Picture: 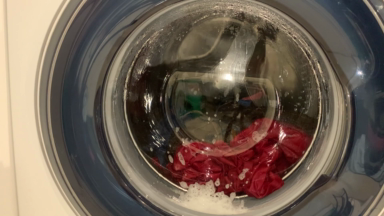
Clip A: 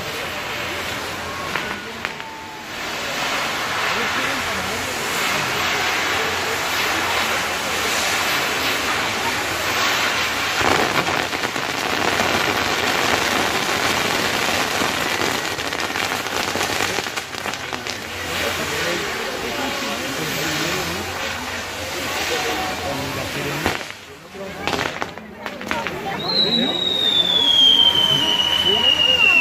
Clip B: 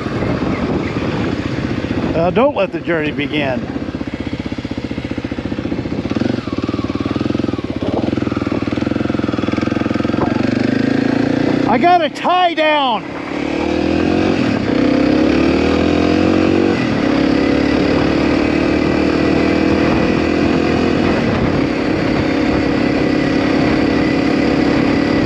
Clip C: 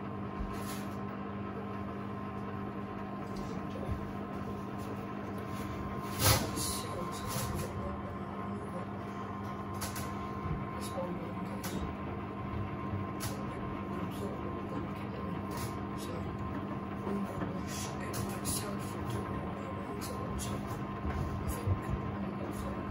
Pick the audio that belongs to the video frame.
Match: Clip C